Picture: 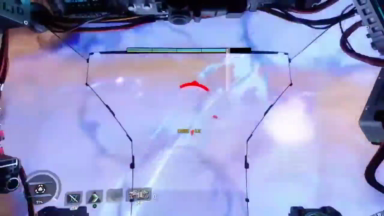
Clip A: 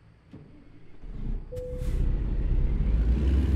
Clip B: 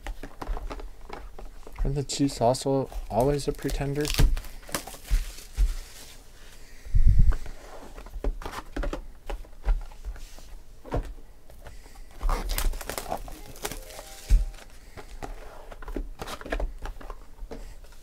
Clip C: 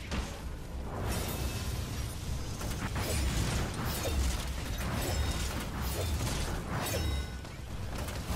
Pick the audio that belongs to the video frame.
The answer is C